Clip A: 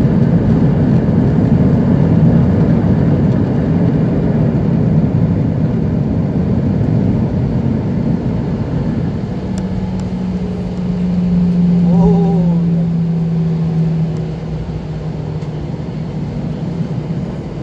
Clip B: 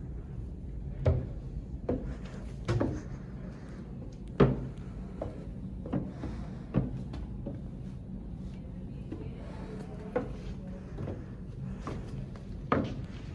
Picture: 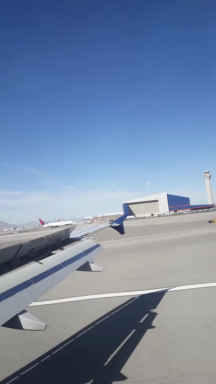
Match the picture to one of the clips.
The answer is A